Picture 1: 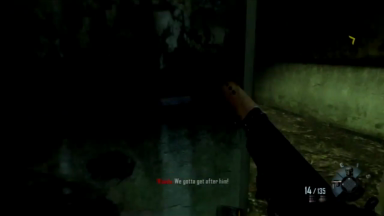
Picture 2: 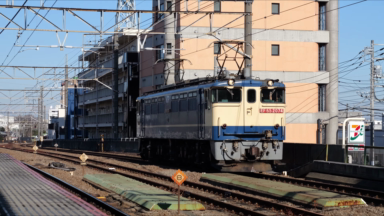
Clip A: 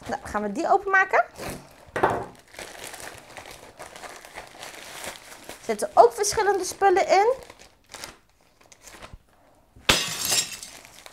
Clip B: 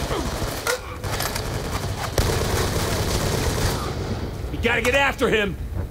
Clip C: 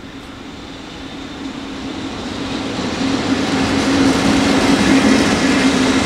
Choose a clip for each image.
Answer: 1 B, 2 C